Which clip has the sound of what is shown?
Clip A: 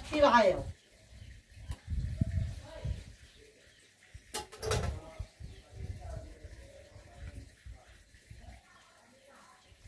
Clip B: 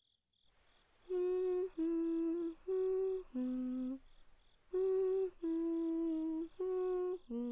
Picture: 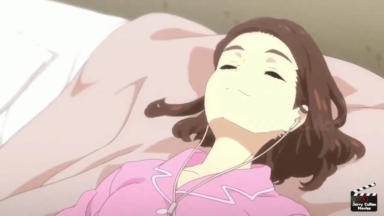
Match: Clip B